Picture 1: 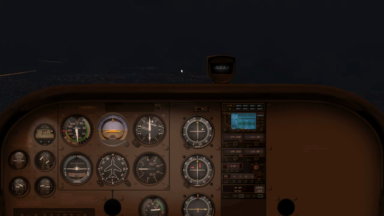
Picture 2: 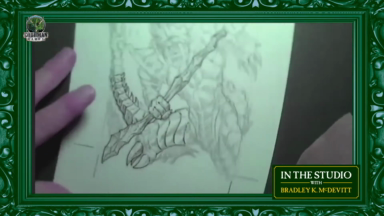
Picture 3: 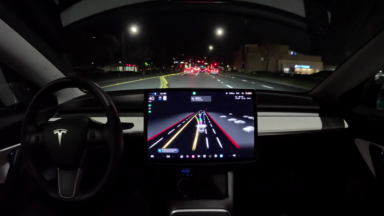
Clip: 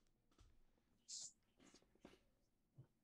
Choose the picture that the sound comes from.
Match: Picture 2